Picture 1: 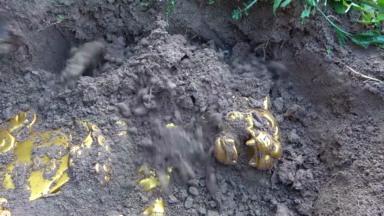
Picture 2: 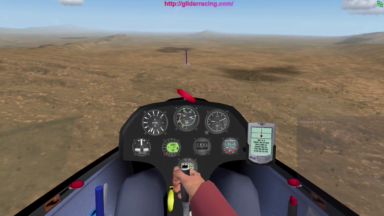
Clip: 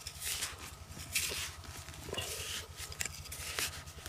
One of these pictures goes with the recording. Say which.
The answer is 1